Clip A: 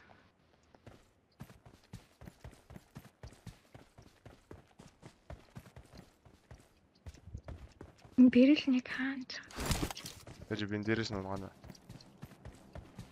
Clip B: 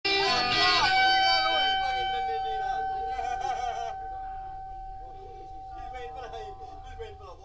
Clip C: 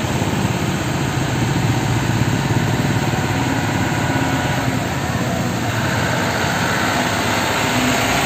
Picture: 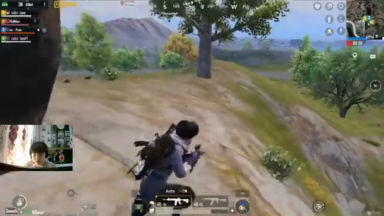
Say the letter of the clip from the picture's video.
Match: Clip A